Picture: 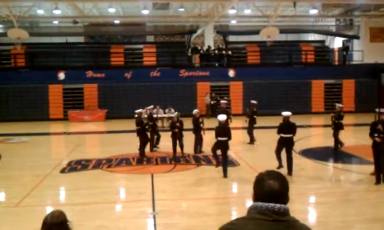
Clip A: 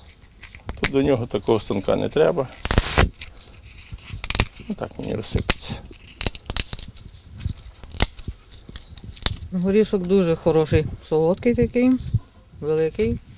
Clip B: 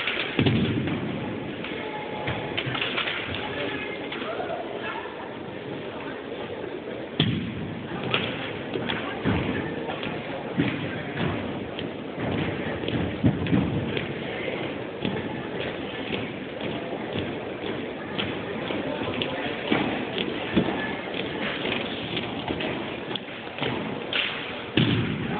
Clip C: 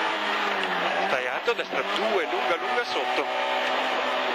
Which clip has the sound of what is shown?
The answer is B